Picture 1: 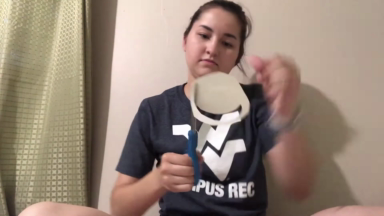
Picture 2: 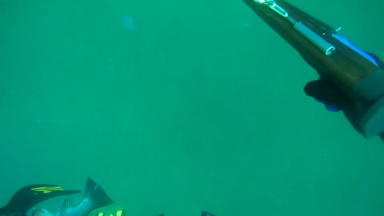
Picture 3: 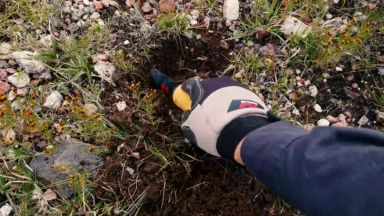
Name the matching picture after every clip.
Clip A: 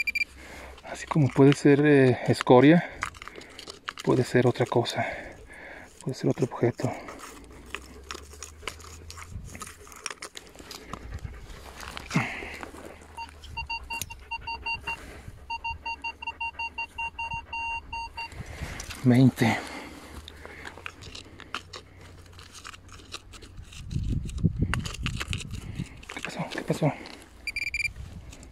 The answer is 3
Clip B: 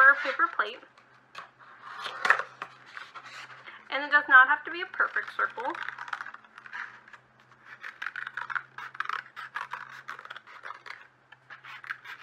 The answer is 1